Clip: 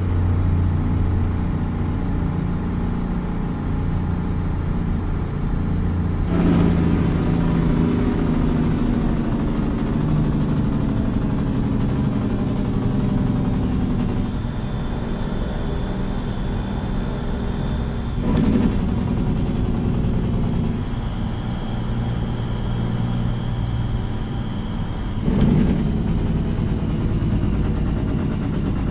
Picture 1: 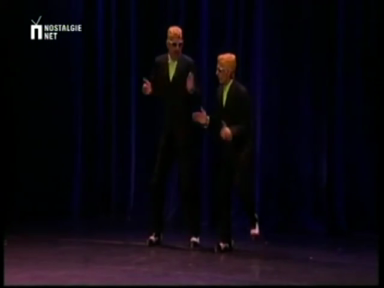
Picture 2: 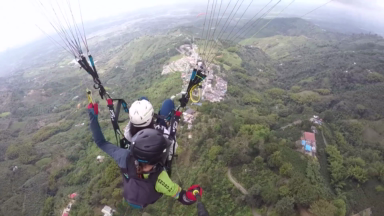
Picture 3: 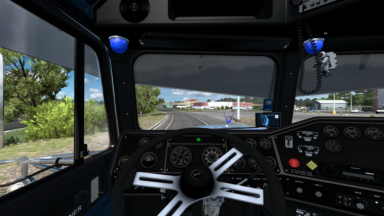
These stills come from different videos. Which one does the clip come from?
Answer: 3